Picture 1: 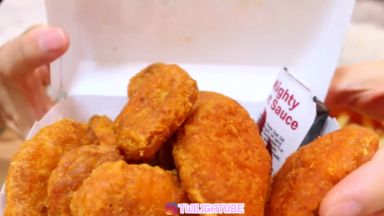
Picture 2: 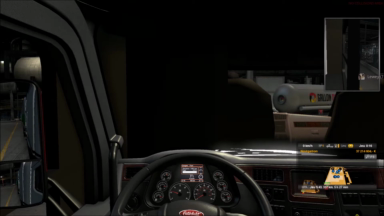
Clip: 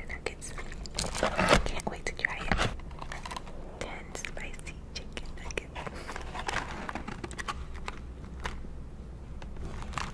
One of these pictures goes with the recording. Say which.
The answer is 1